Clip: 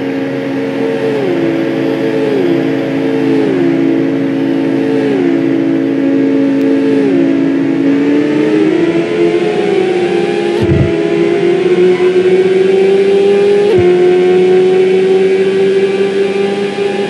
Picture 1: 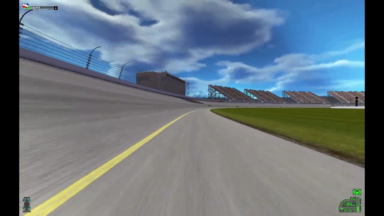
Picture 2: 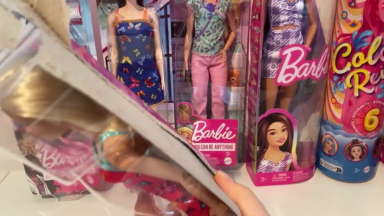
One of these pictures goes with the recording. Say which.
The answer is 1